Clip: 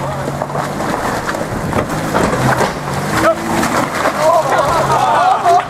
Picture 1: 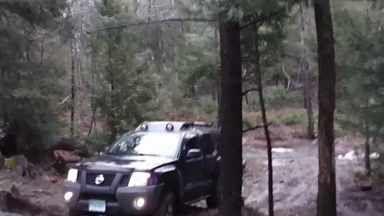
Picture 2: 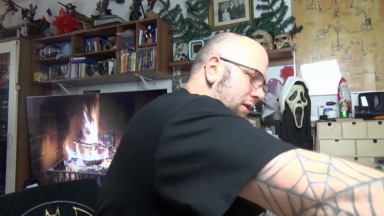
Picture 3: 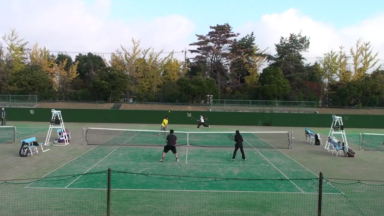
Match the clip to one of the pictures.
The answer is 1